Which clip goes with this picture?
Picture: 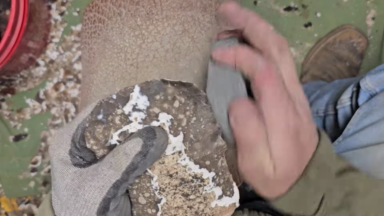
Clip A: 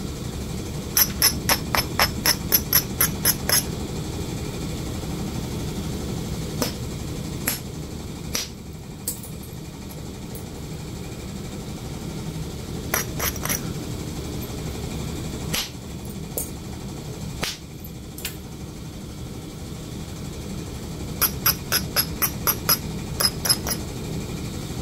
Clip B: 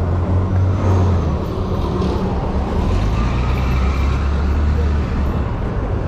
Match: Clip A